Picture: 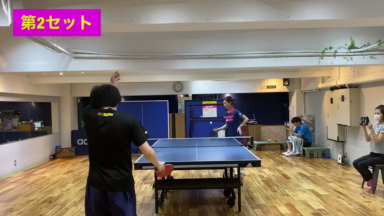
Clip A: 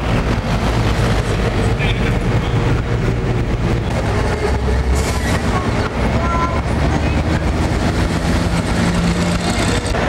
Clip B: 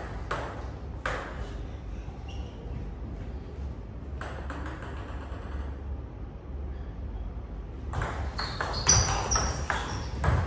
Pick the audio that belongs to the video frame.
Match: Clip B